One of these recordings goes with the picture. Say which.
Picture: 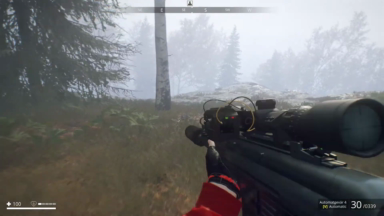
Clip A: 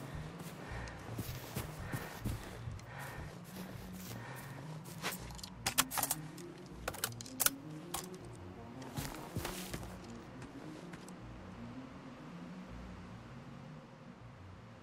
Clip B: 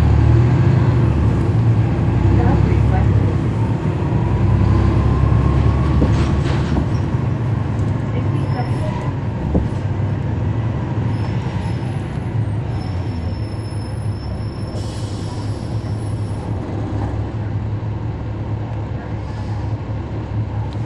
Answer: A